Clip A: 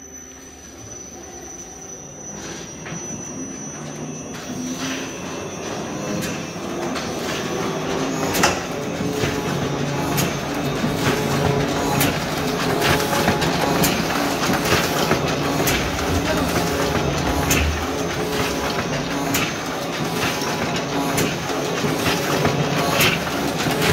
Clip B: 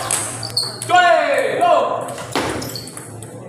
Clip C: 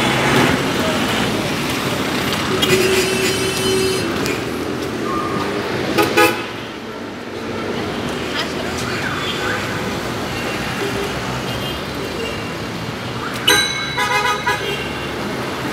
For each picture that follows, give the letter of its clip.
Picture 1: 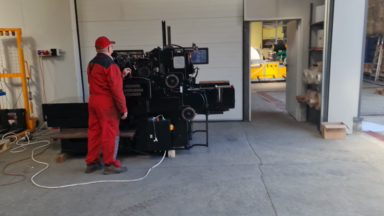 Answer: A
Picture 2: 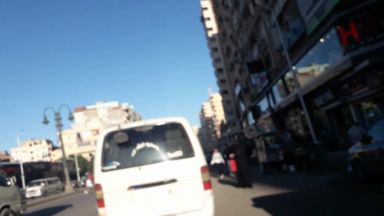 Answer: C